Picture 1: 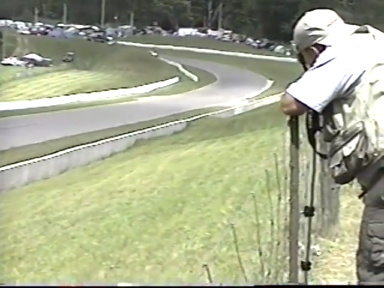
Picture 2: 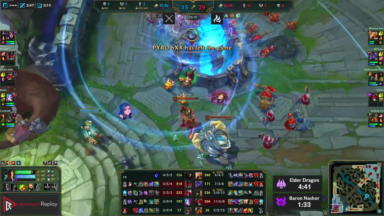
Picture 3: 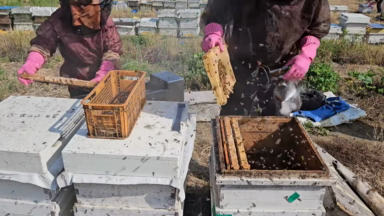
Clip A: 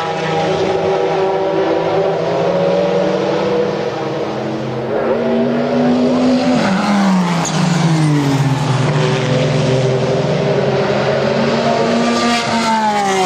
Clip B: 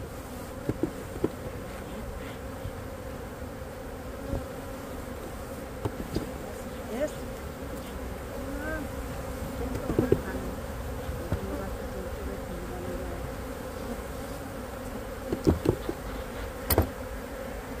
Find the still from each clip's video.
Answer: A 1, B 3